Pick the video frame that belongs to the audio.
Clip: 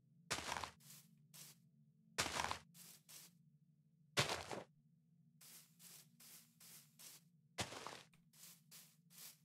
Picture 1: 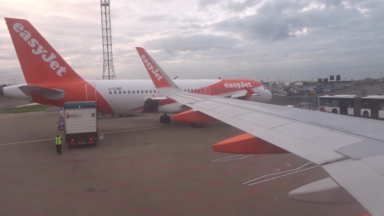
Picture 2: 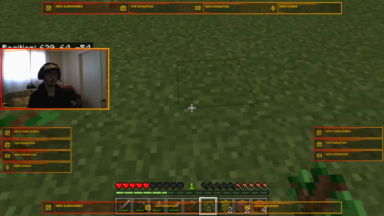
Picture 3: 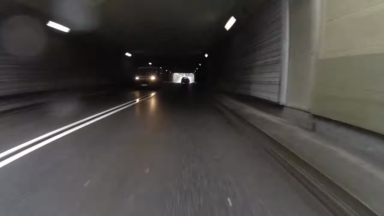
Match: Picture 2